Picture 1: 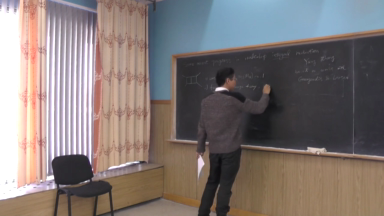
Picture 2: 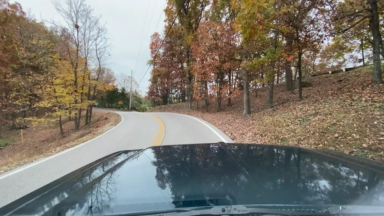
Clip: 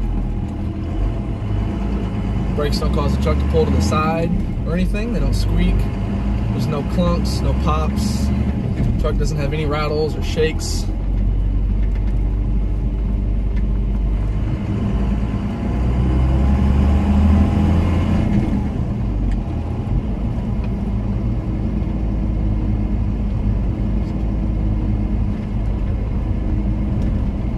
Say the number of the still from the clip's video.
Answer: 2